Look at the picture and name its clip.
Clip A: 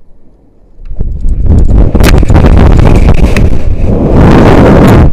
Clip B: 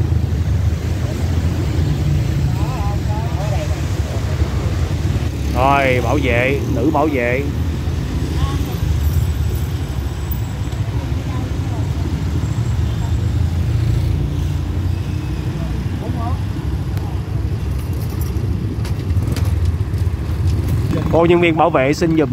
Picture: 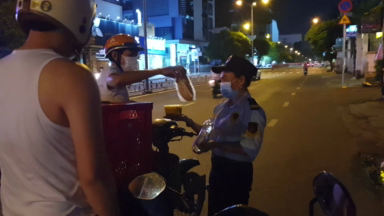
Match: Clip B